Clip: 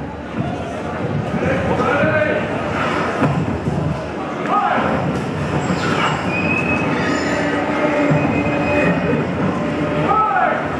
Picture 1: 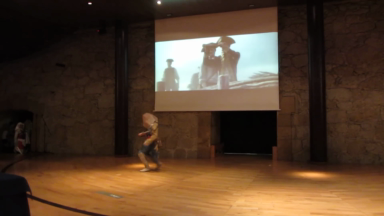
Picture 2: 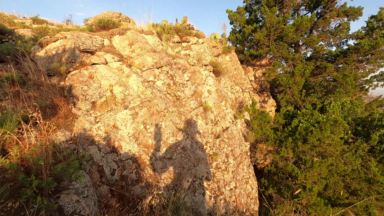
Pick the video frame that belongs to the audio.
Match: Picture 1